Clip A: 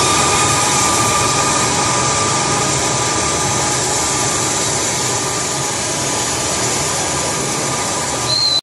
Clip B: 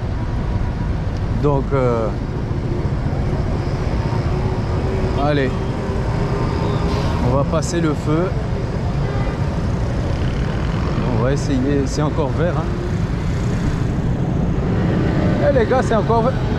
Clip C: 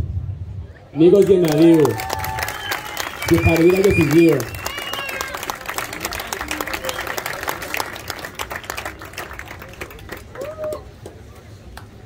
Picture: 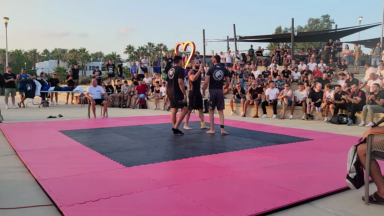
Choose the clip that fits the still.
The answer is C